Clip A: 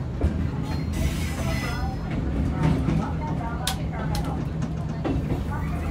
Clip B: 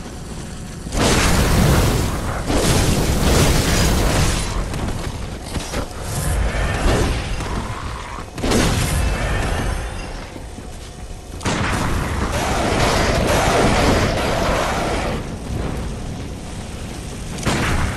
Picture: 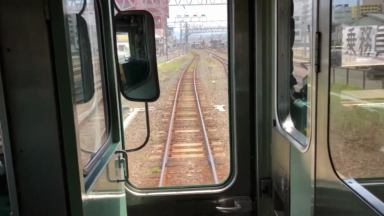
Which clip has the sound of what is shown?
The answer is A